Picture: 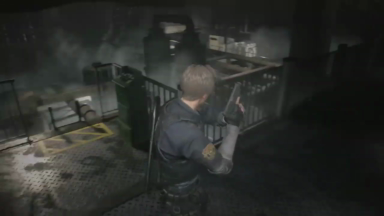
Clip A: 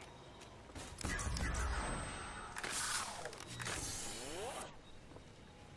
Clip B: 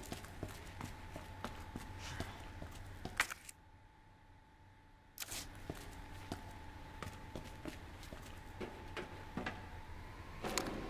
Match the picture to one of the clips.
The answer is B